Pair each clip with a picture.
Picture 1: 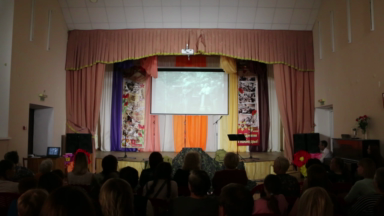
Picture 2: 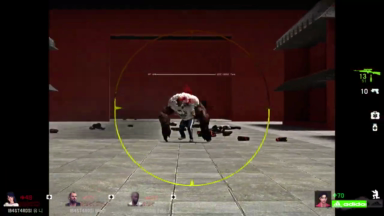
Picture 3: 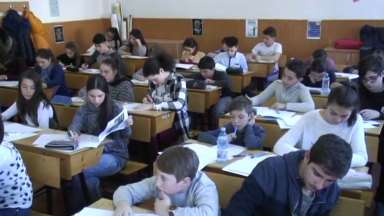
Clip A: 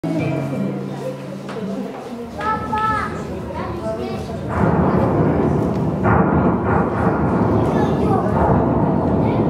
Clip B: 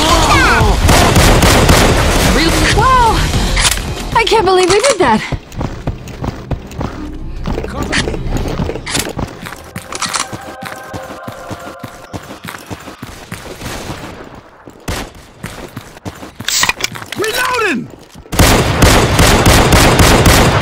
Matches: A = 1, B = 2